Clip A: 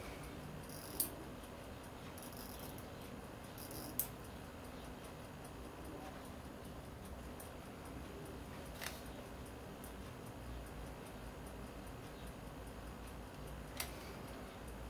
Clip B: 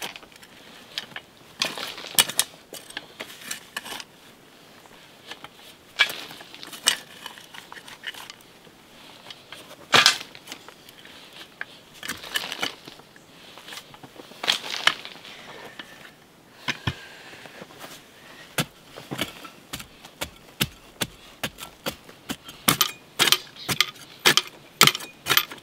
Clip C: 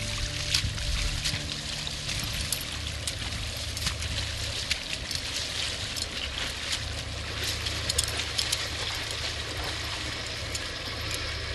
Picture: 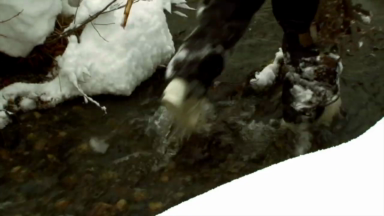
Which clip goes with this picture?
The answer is C